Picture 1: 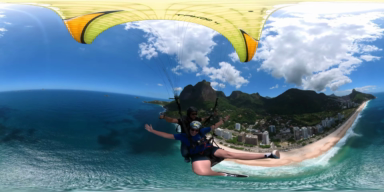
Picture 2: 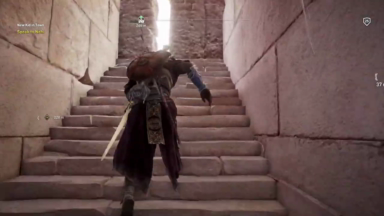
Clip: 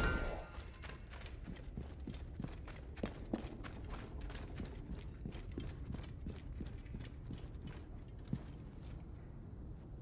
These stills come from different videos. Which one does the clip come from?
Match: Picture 2